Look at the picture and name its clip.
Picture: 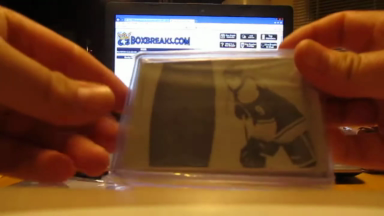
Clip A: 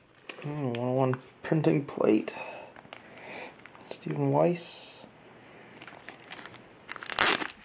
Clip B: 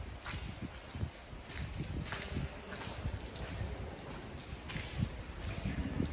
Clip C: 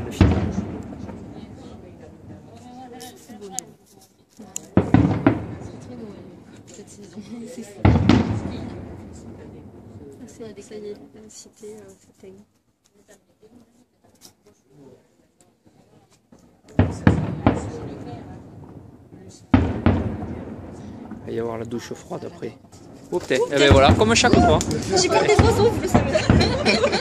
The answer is A